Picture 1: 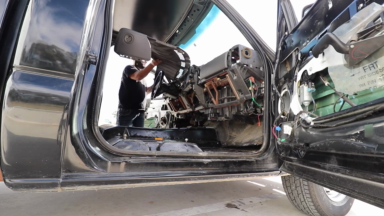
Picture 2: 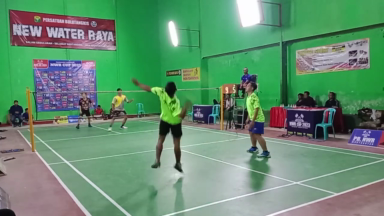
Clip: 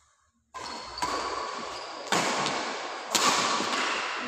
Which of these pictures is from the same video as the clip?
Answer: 2